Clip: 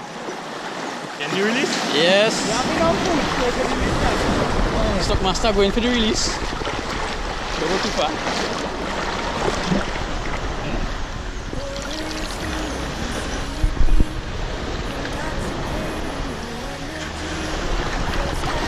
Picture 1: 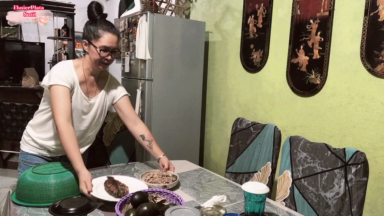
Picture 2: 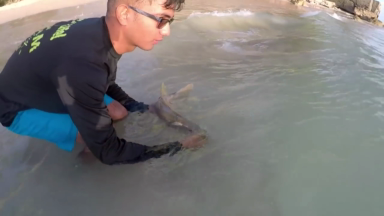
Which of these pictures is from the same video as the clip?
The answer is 2